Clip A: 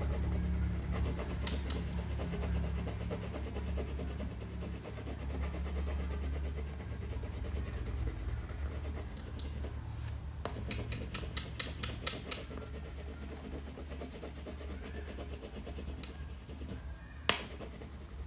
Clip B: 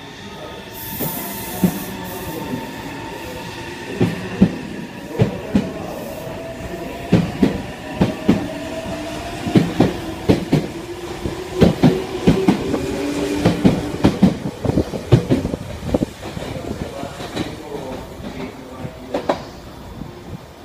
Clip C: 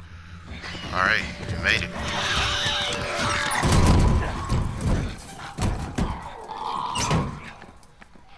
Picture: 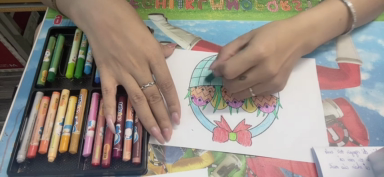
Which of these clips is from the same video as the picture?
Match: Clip A